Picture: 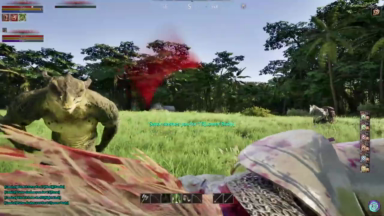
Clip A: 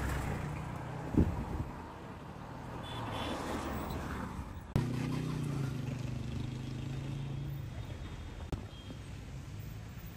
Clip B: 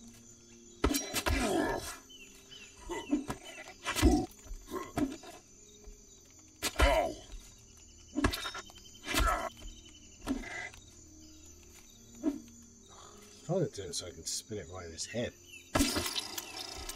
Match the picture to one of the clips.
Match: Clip B